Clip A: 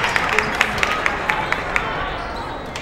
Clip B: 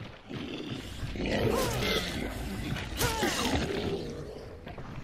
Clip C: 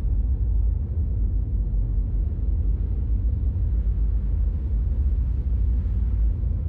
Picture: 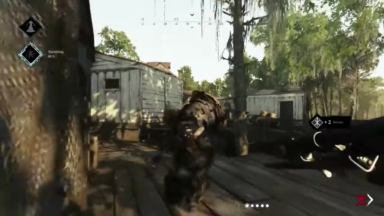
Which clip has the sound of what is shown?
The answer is B